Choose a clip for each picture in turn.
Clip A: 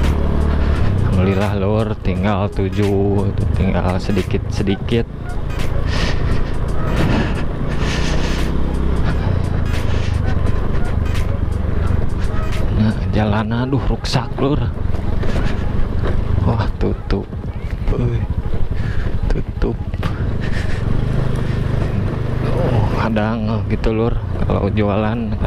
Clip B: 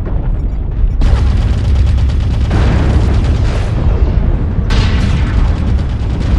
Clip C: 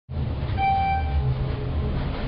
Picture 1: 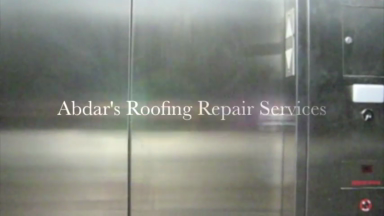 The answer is C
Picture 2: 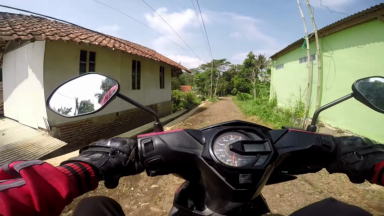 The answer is A